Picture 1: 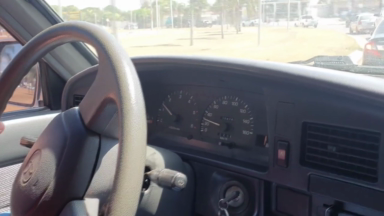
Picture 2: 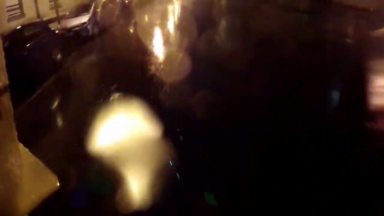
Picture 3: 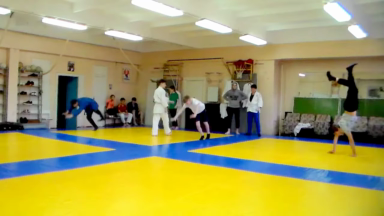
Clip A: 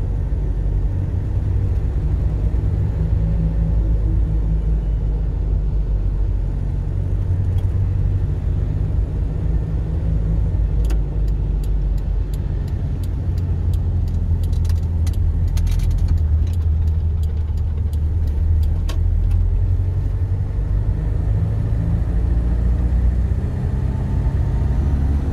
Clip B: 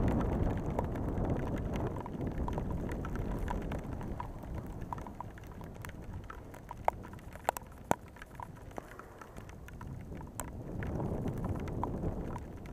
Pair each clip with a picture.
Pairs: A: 1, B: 2